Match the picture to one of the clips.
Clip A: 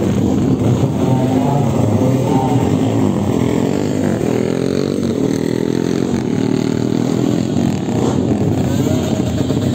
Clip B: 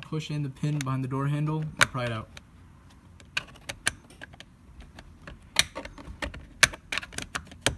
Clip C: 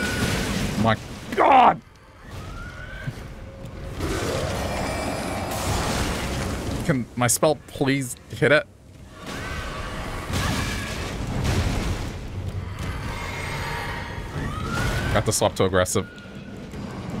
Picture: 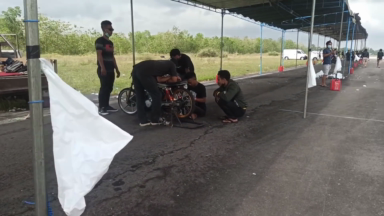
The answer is A